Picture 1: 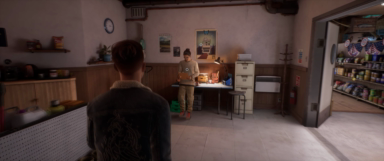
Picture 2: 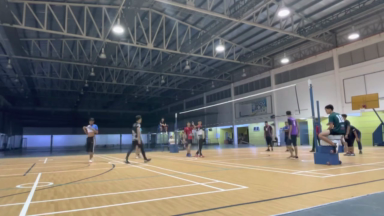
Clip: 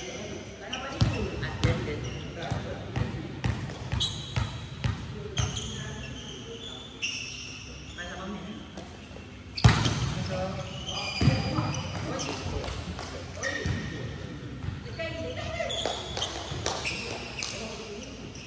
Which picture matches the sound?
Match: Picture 2